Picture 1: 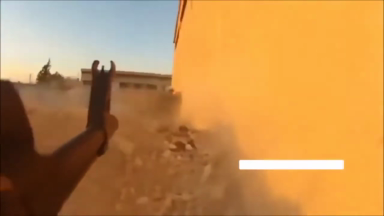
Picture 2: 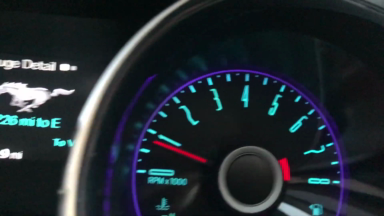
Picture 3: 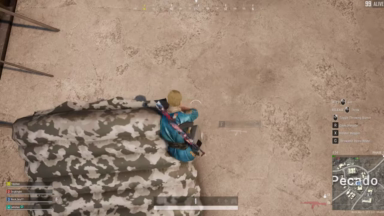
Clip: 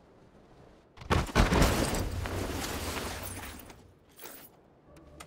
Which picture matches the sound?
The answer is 3